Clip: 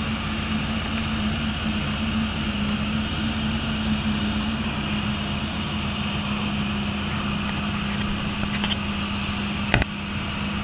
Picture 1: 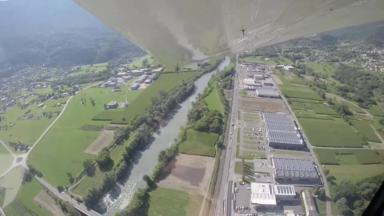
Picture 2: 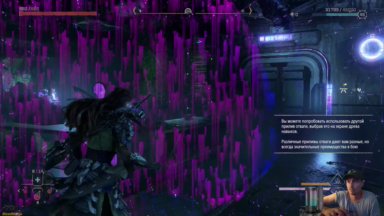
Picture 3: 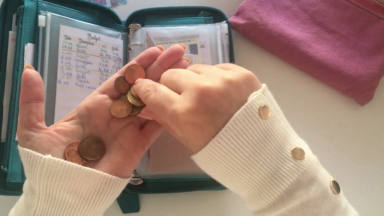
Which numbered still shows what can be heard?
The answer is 1